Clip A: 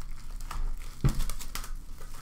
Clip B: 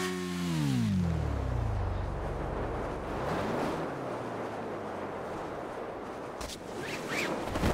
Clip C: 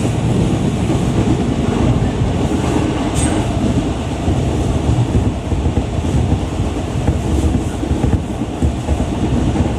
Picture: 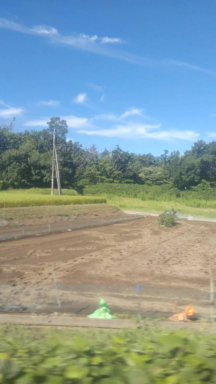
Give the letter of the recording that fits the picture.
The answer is C